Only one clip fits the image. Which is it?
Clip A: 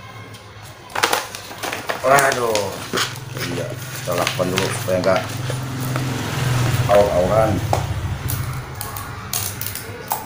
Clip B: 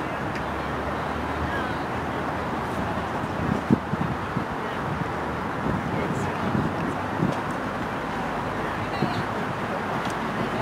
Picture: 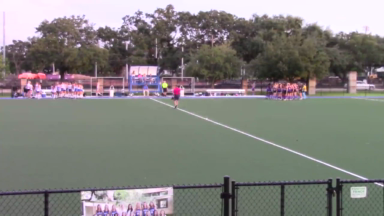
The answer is B